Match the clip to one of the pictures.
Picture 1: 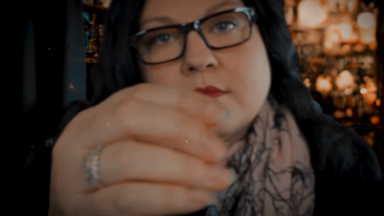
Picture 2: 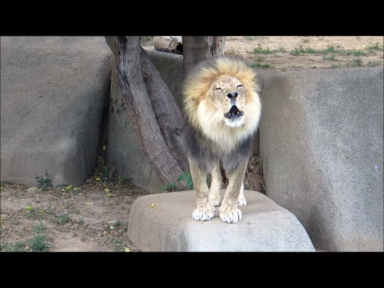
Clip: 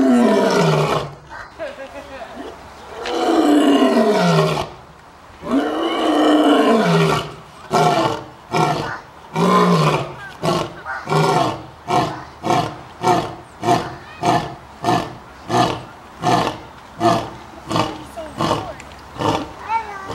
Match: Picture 2